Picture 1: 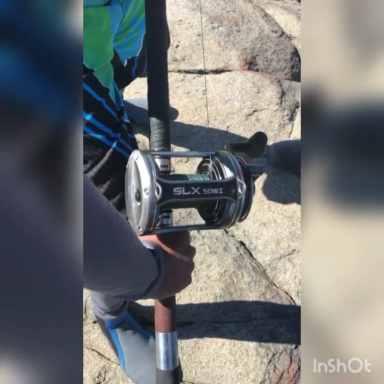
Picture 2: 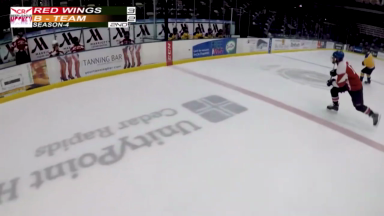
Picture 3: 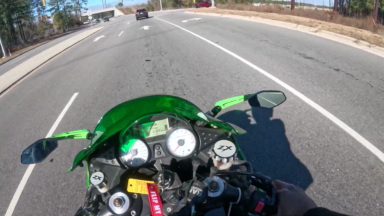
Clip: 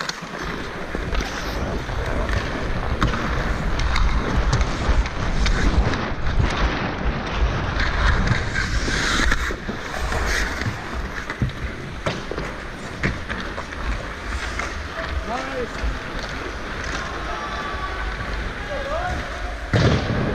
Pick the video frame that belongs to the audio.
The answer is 2